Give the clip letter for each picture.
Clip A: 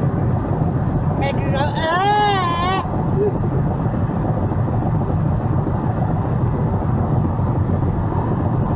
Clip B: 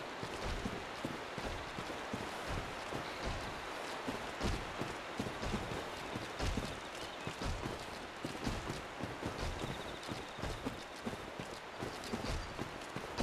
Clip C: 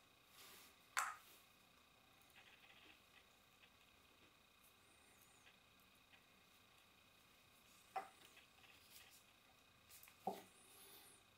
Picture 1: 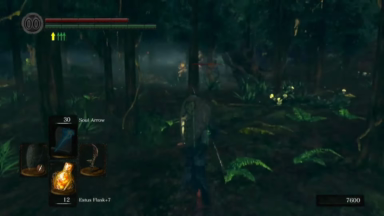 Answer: B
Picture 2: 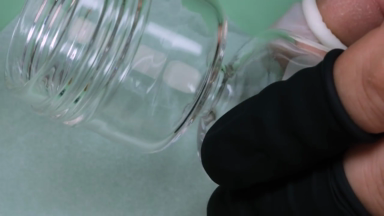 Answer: C